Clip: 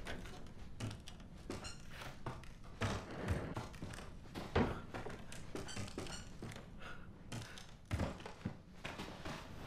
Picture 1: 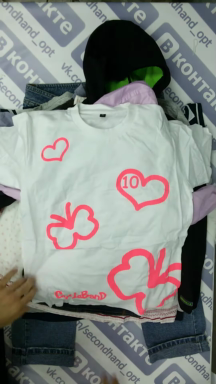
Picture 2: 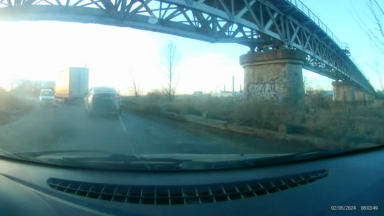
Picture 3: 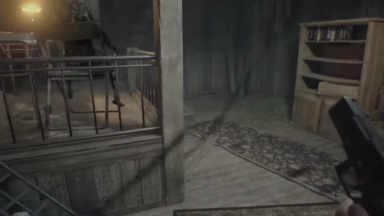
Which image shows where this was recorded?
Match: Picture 3